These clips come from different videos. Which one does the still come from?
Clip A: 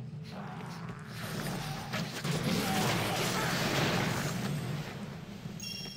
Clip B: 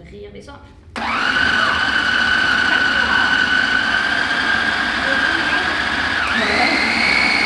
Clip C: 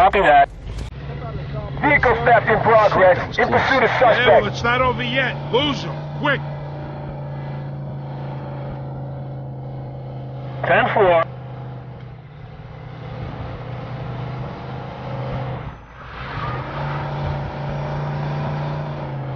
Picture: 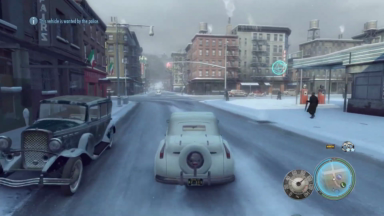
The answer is C